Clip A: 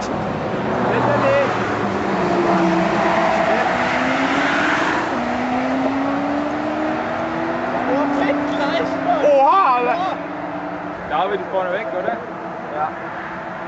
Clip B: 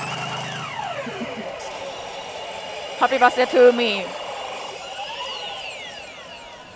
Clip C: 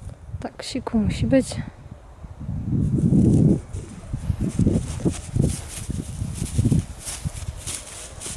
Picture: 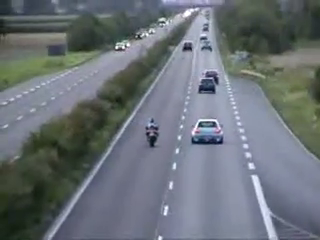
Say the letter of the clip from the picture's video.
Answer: A